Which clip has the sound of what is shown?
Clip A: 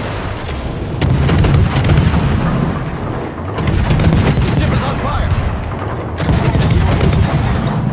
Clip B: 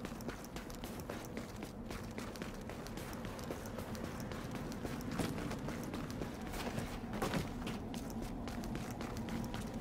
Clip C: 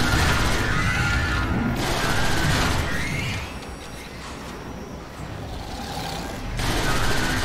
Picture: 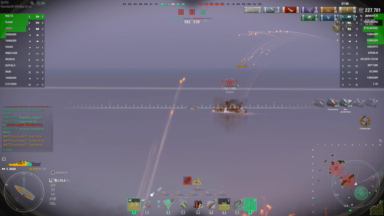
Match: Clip A